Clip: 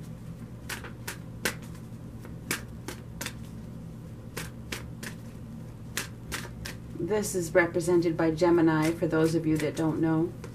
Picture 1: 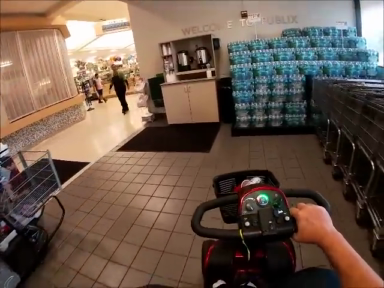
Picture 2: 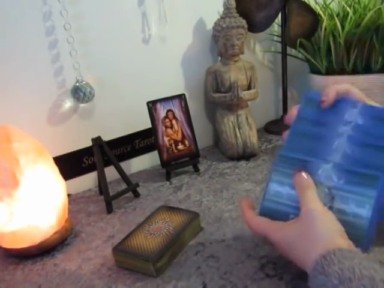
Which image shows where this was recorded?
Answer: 2